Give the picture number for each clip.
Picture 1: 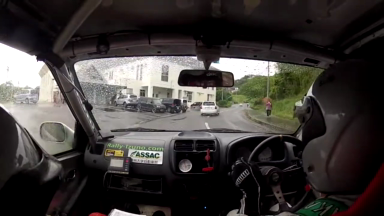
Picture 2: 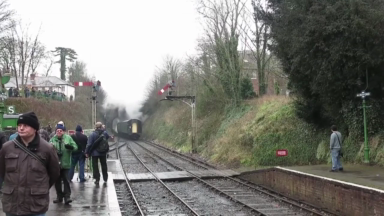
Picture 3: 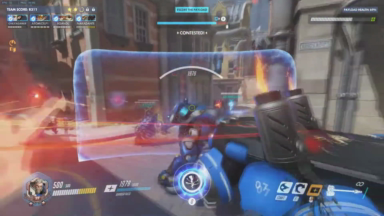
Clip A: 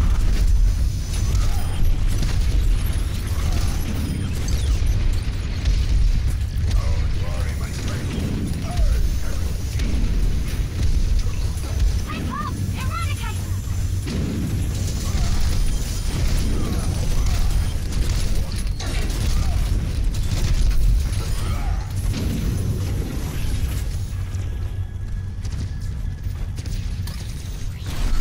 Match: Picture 3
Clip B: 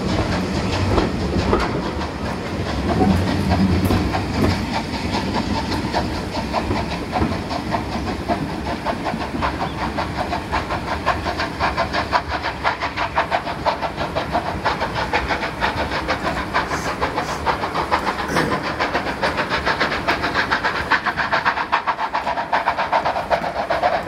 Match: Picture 2